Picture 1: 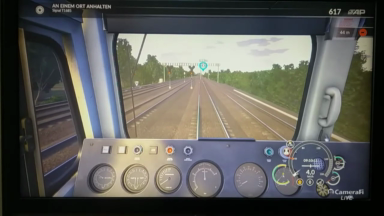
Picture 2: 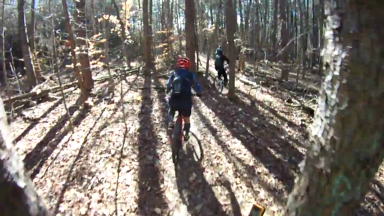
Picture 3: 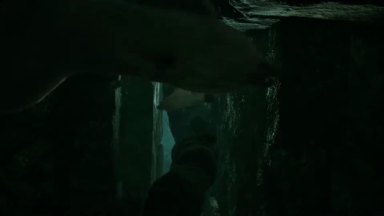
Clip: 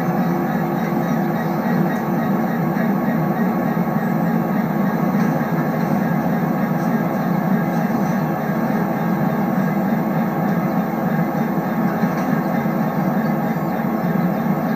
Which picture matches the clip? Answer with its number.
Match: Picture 1